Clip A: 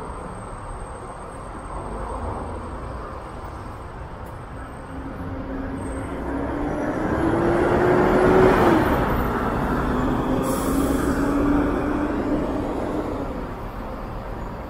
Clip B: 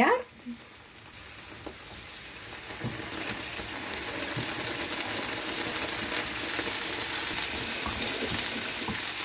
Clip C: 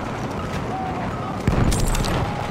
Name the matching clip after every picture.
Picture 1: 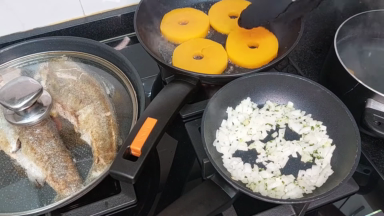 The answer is B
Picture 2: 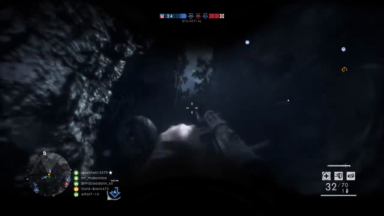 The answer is C